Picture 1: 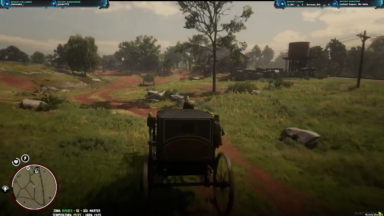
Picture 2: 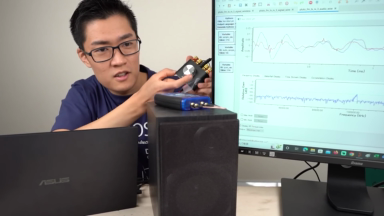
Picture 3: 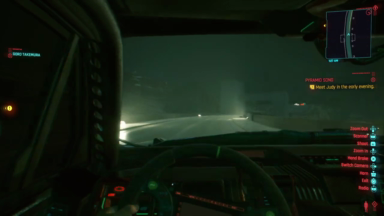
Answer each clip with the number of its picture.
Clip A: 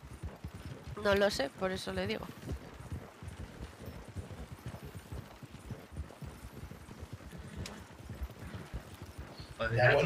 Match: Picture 1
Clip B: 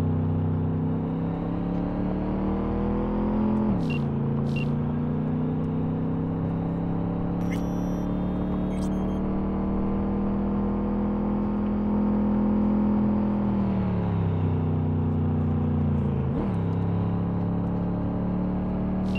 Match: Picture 3